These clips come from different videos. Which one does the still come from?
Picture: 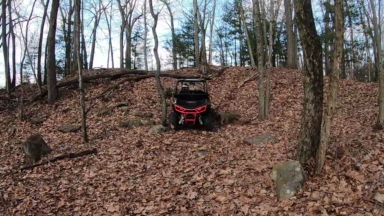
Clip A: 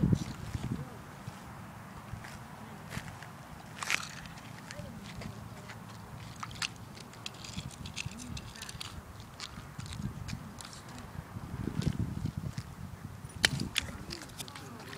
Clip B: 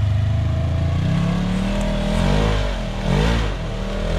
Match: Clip B